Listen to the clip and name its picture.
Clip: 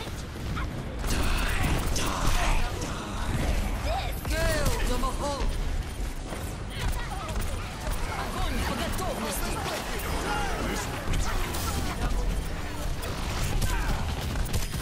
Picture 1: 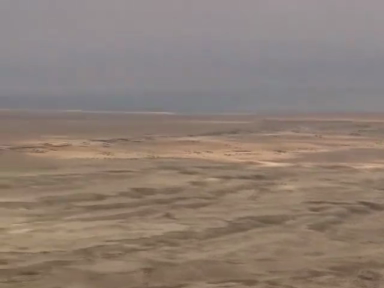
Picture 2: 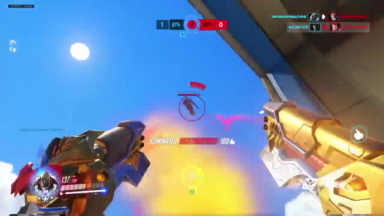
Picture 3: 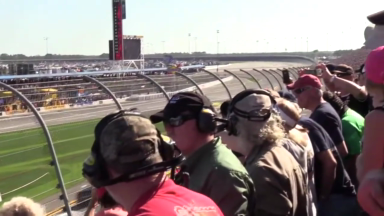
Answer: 2